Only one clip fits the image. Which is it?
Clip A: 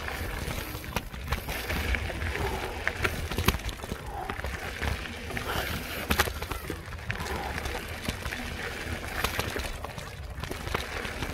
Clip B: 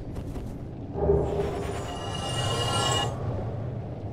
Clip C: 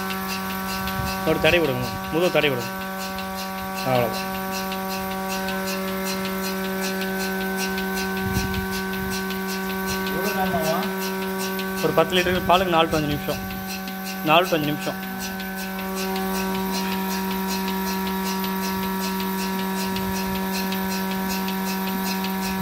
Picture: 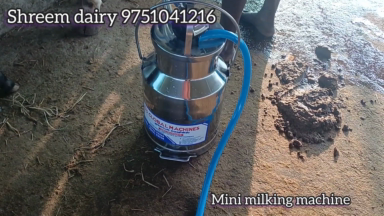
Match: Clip C